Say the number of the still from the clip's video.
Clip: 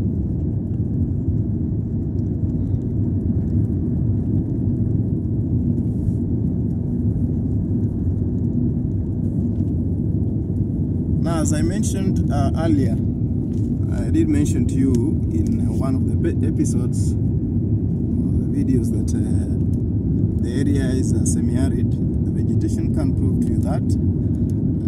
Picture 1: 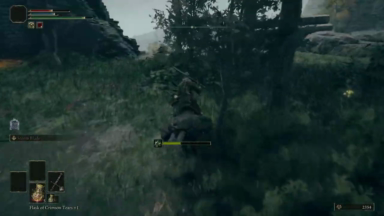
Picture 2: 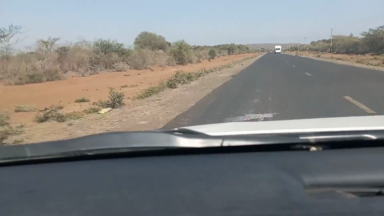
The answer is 2